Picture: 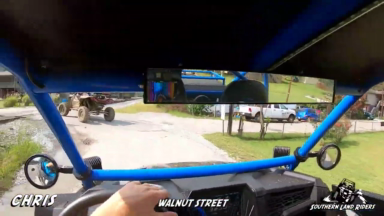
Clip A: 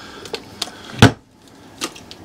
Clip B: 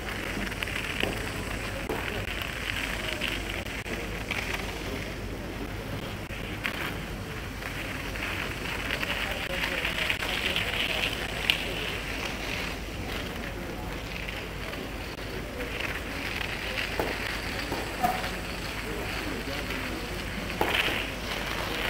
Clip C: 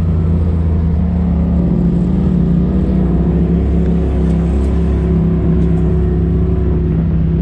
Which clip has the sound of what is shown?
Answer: C